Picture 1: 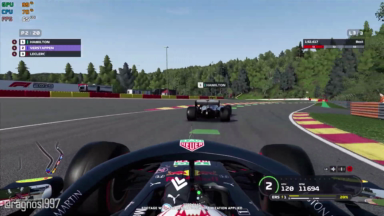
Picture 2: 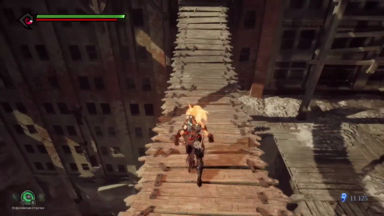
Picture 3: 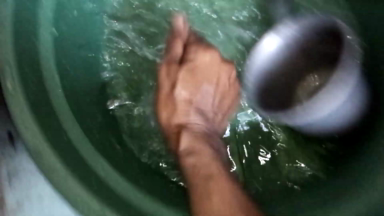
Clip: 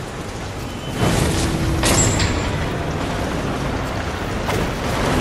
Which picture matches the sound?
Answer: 2